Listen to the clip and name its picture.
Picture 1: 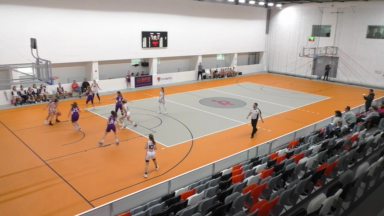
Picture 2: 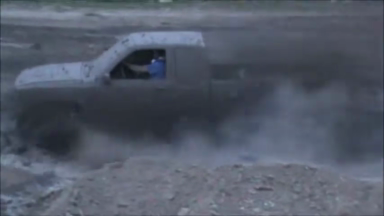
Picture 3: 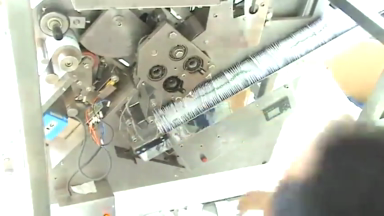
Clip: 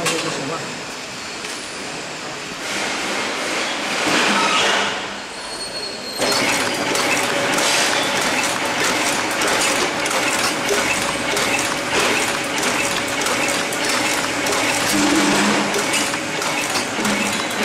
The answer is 3